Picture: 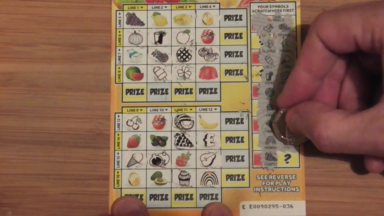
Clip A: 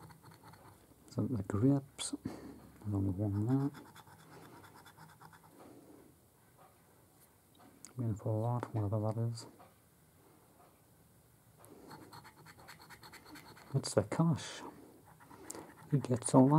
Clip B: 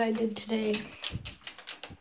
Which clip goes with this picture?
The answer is A